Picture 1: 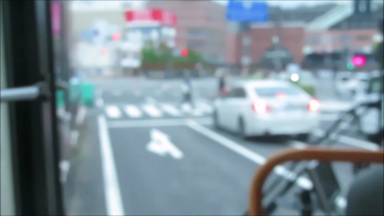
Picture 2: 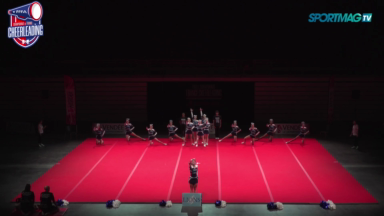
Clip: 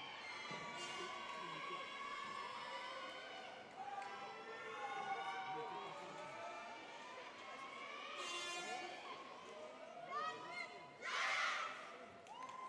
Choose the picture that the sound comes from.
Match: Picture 2